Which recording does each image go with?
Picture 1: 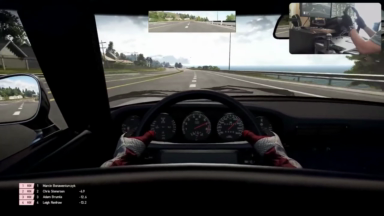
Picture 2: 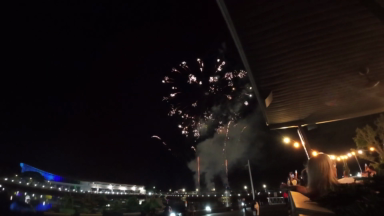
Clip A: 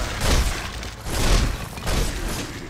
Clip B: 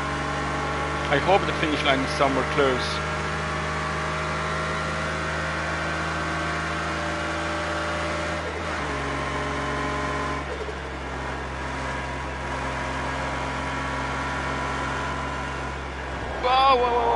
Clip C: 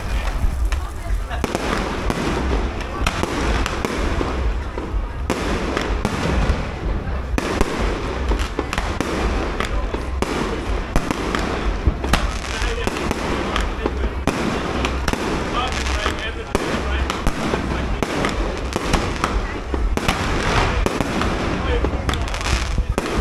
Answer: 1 B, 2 C